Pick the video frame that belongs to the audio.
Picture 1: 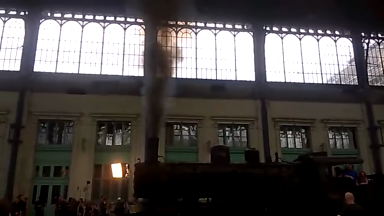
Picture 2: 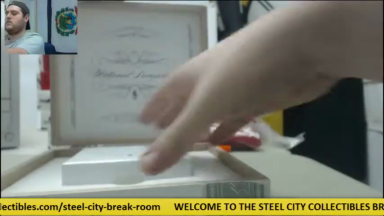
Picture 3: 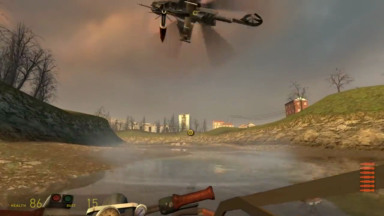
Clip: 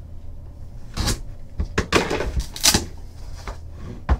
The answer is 2